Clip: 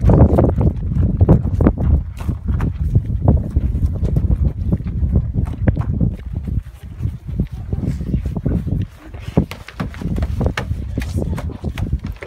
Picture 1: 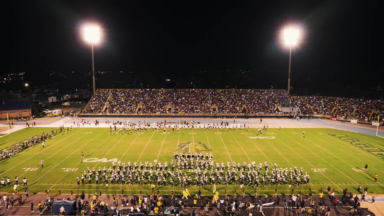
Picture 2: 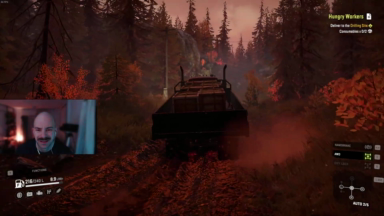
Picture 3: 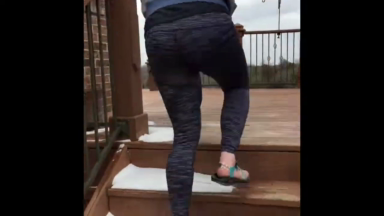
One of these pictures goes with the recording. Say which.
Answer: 3